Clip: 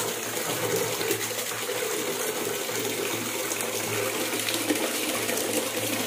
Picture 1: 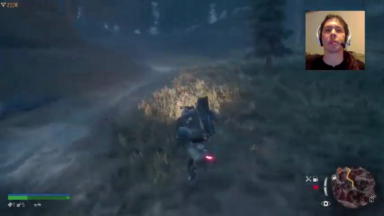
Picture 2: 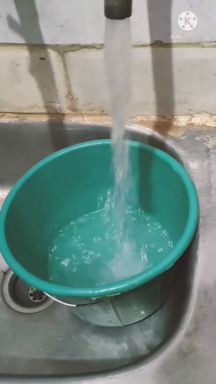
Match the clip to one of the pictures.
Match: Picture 2